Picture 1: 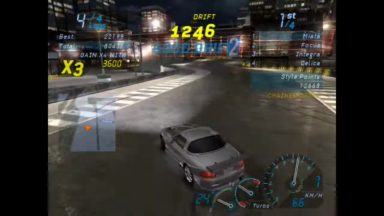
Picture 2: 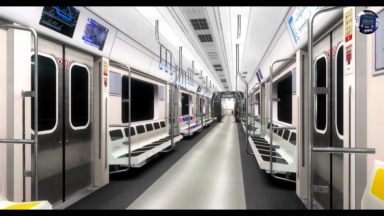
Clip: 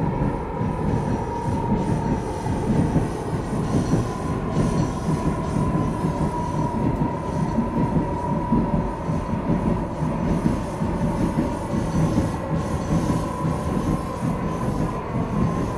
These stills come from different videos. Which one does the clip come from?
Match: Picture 2